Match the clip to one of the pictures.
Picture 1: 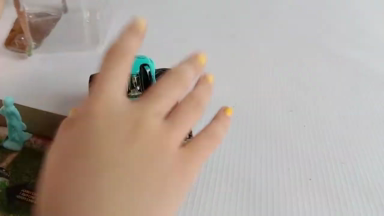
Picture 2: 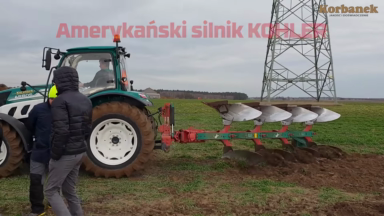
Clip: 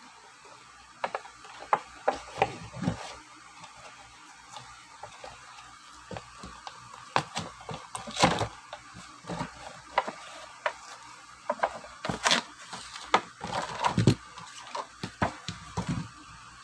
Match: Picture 1